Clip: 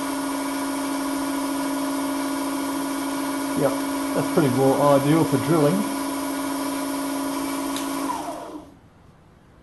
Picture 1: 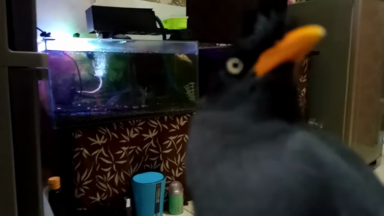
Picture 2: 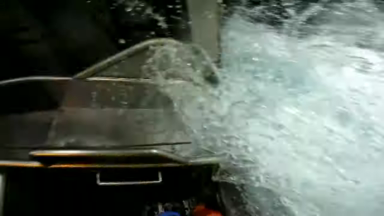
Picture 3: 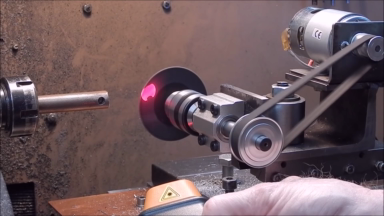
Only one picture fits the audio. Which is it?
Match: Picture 3